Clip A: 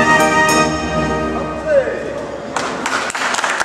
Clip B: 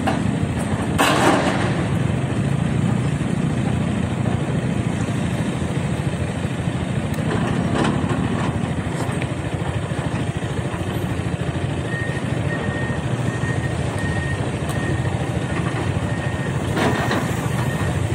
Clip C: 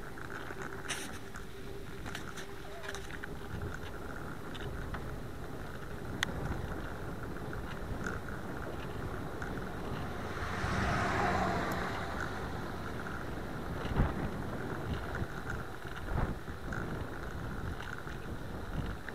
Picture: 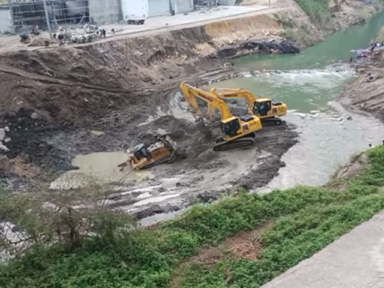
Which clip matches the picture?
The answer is B